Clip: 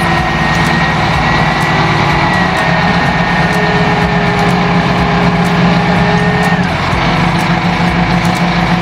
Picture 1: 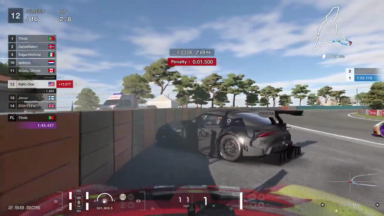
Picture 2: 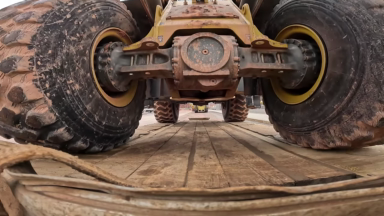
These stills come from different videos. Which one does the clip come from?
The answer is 2